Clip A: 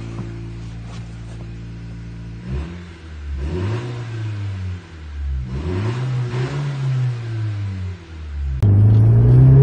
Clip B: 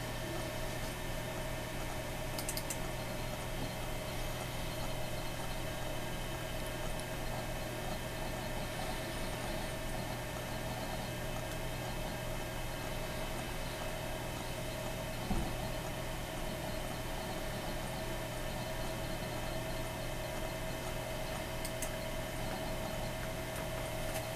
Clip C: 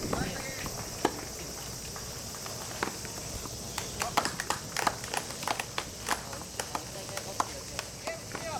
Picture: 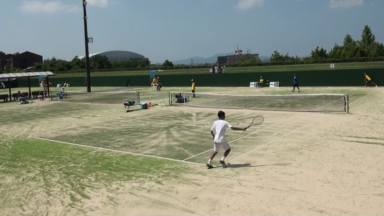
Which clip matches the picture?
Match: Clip C